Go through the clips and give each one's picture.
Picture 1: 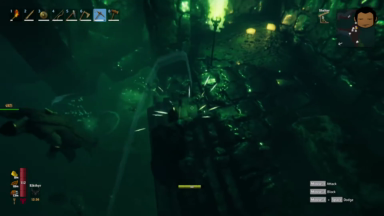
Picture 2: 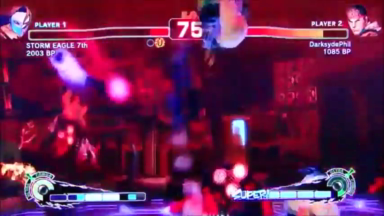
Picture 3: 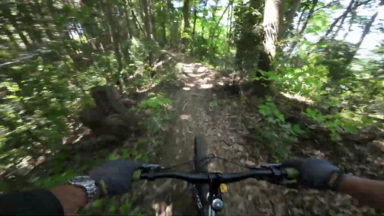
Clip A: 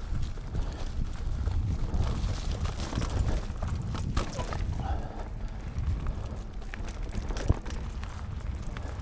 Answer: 3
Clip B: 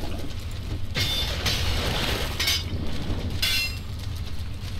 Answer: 1